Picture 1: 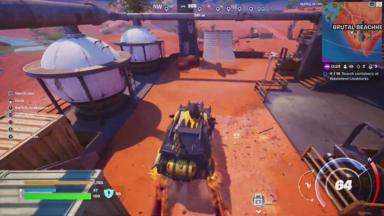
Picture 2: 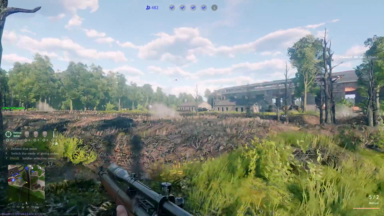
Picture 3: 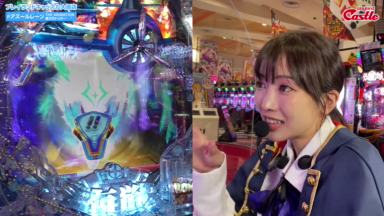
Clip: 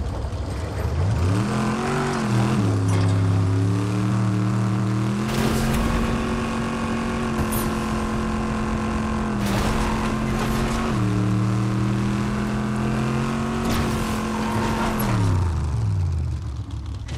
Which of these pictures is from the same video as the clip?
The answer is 1